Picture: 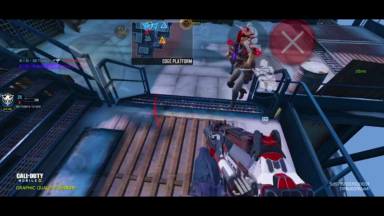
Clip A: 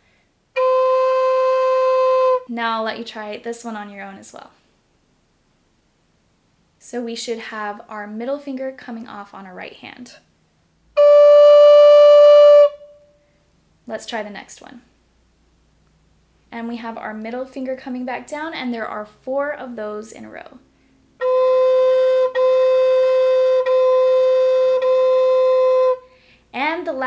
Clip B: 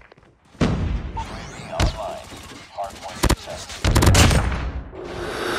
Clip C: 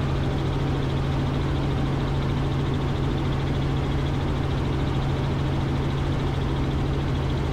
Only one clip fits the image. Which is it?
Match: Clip B